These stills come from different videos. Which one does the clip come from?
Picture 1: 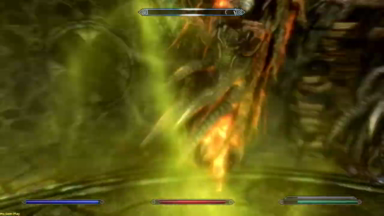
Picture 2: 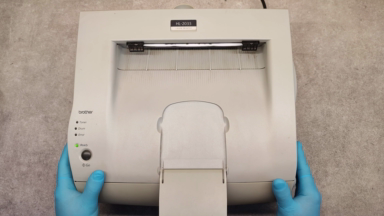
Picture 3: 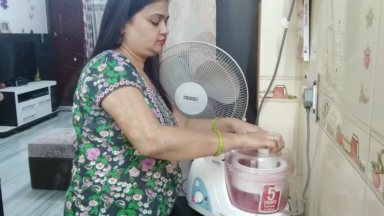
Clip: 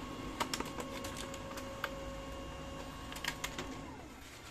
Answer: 2